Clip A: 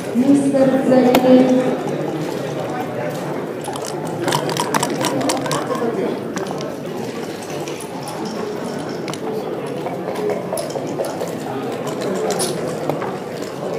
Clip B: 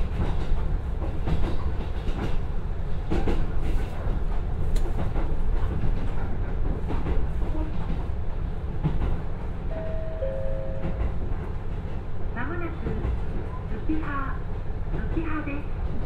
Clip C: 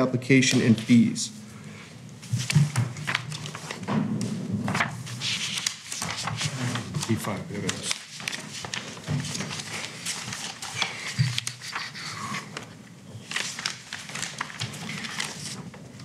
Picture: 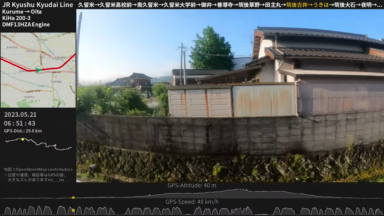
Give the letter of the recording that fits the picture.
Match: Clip B